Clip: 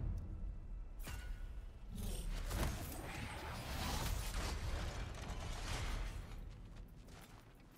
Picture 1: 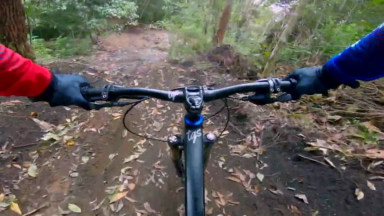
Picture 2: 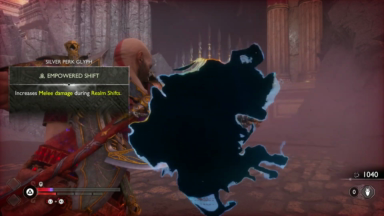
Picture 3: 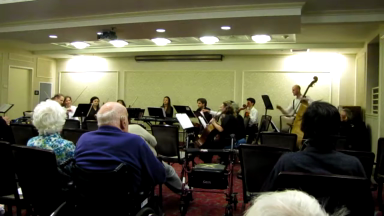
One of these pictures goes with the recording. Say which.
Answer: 2